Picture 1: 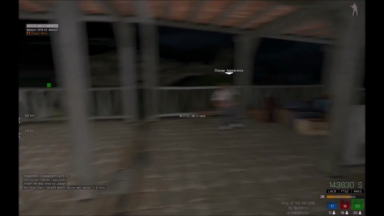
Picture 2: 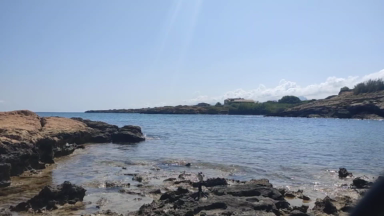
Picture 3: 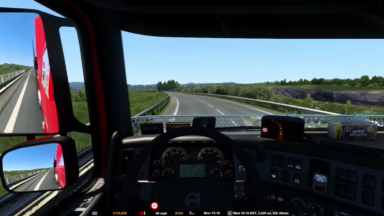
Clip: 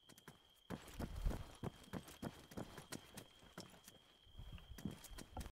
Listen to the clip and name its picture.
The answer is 1